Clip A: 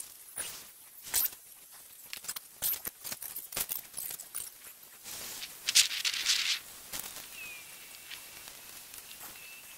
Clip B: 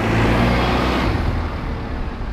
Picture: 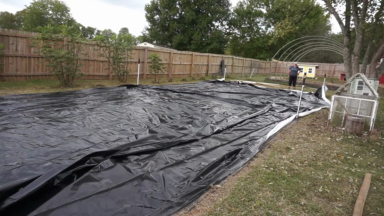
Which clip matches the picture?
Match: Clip A